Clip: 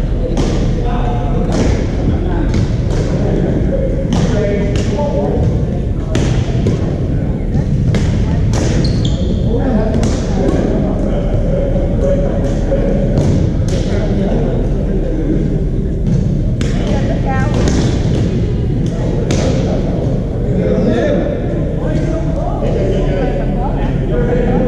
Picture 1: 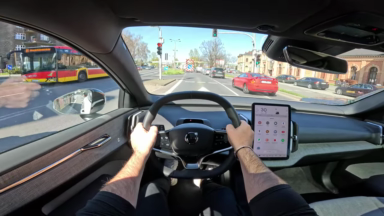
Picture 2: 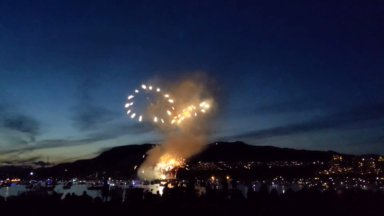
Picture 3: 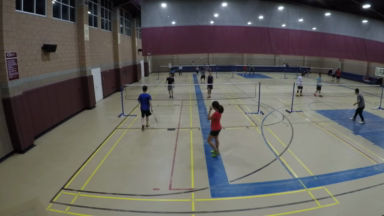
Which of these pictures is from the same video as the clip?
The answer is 3